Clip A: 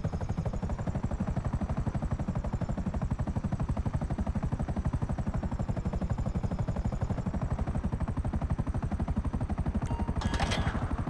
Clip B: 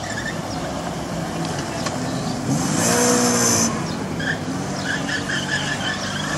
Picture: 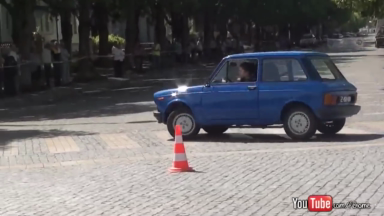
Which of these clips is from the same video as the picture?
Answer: B